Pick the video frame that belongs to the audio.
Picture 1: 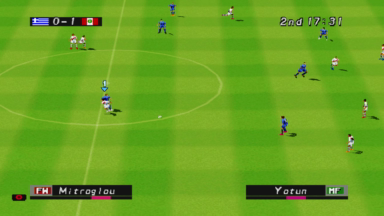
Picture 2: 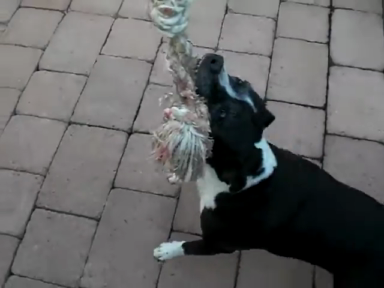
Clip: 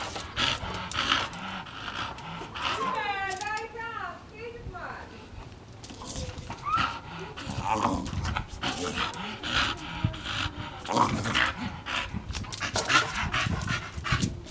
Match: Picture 2